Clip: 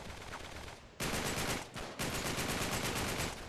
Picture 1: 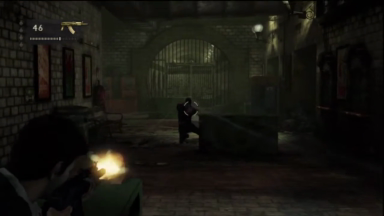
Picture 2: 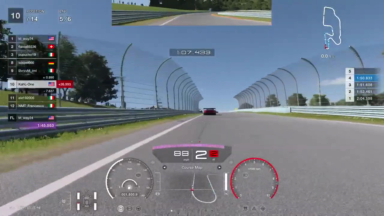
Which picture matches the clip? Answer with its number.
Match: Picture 1